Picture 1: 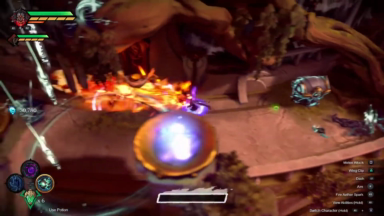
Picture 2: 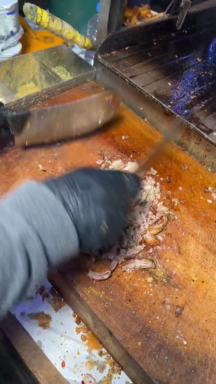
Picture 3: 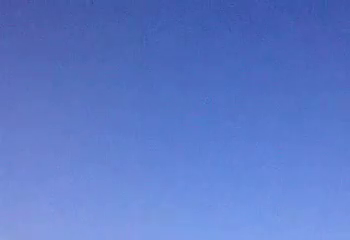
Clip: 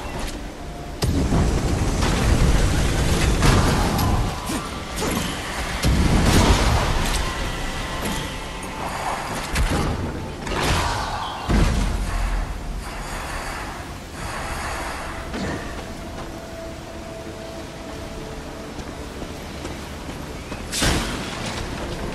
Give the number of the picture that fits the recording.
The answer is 1